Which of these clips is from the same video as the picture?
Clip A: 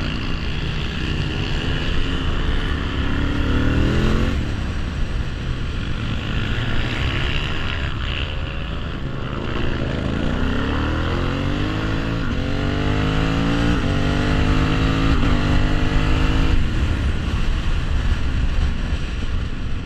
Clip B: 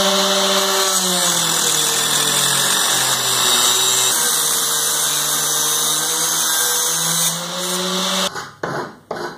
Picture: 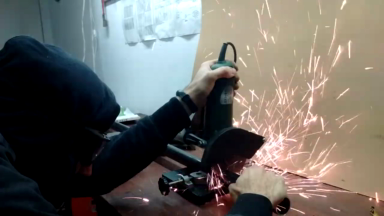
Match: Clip B